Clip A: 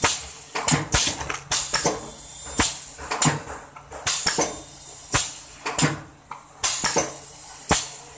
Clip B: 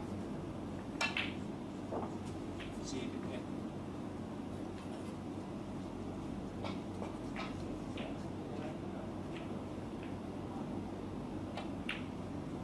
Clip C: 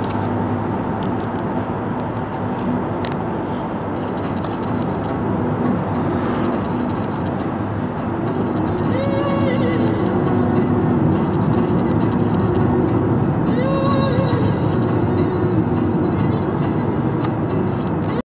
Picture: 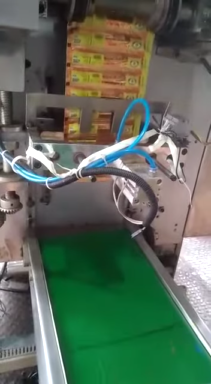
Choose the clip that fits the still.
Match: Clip A